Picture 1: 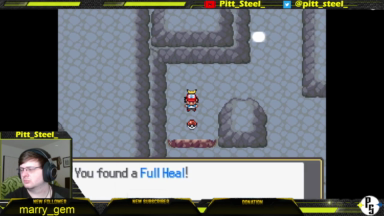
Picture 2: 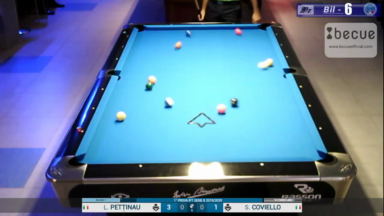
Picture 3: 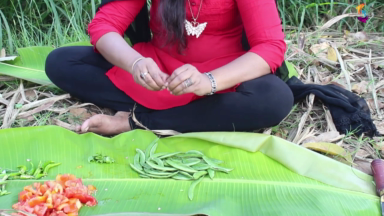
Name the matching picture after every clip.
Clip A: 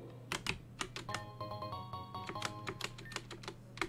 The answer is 1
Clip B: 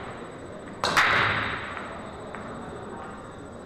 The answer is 2